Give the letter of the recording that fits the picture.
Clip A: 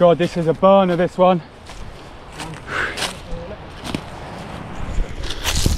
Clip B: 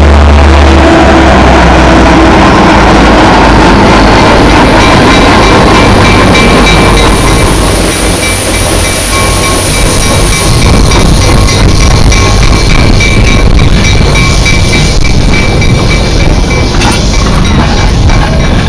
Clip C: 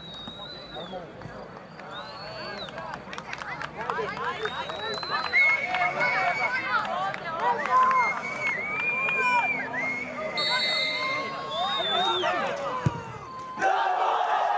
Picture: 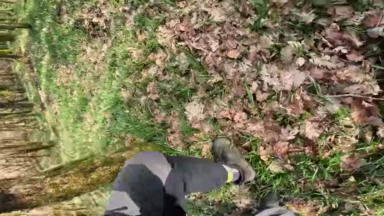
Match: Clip A